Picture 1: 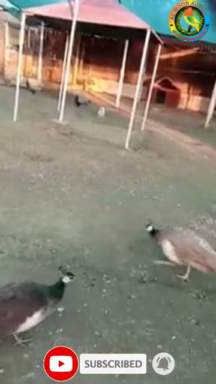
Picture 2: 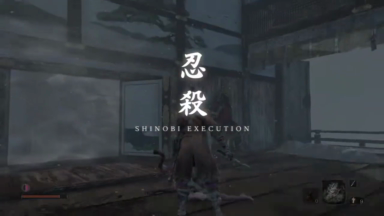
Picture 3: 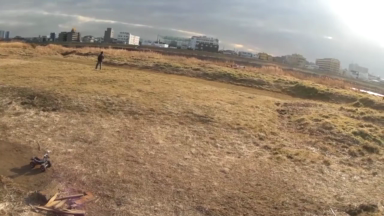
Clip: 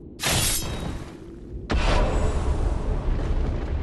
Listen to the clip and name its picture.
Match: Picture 2